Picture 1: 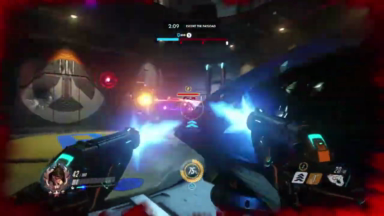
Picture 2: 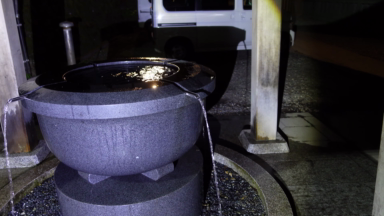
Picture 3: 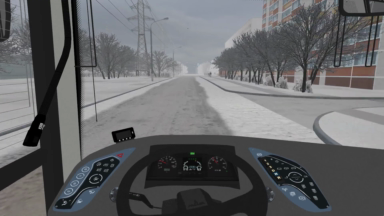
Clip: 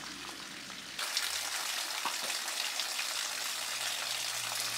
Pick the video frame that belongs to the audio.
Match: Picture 2